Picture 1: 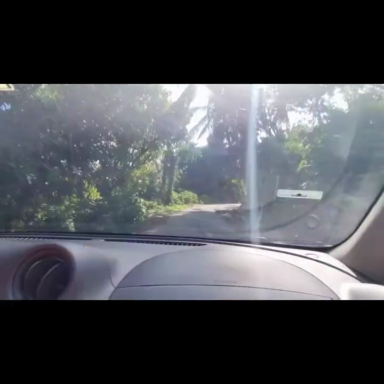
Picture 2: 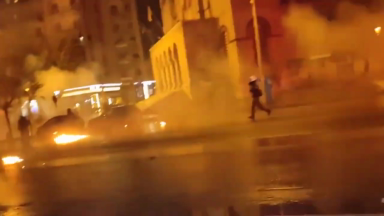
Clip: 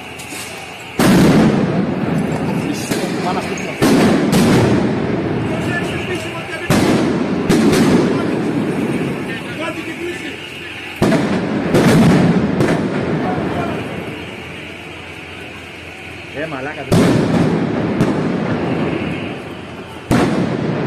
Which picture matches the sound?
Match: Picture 2